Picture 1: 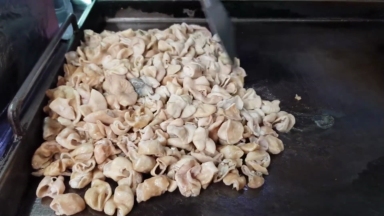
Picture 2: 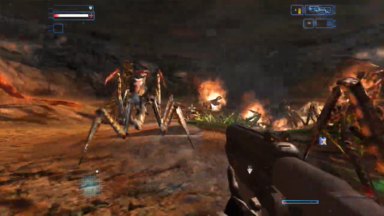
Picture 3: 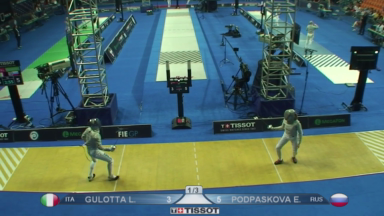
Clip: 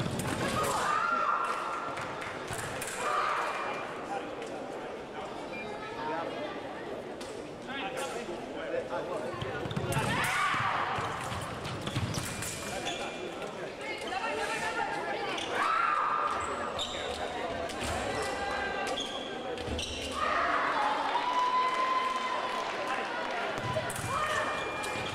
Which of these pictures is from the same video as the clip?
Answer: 3